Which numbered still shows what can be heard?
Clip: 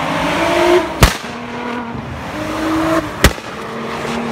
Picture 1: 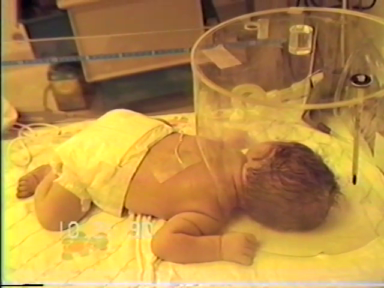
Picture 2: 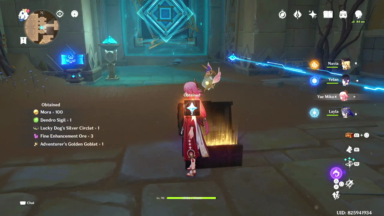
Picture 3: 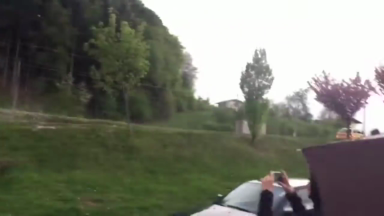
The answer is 3